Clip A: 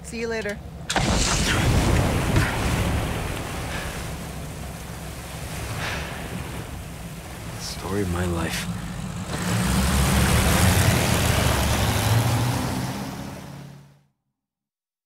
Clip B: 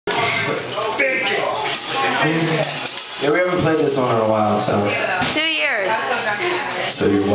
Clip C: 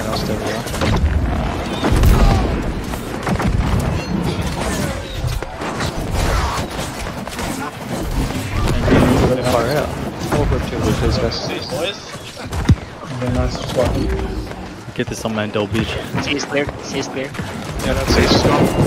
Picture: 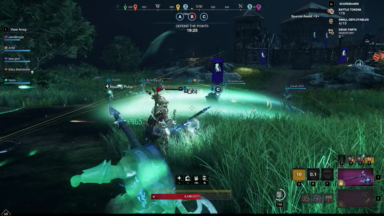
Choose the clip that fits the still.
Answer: C